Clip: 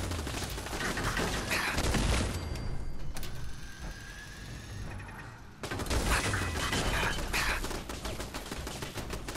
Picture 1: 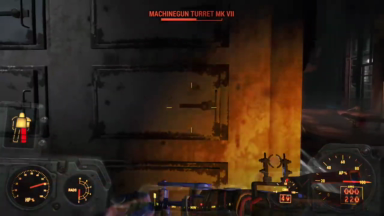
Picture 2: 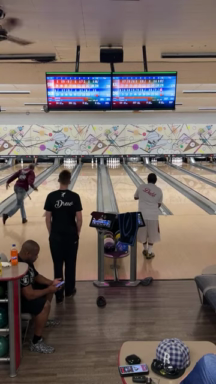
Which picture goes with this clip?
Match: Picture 1